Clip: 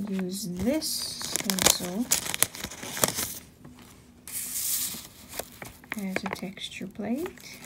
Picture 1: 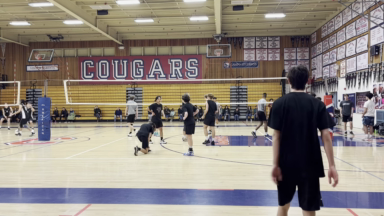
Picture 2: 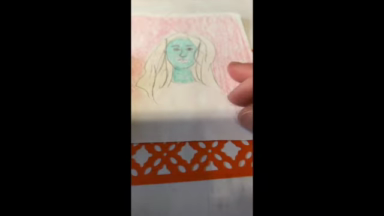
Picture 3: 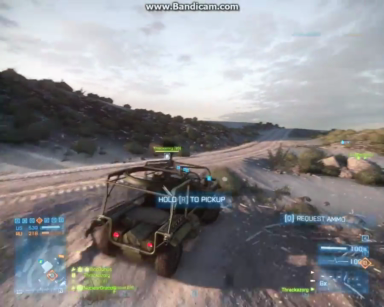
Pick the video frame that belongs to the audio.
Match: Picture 2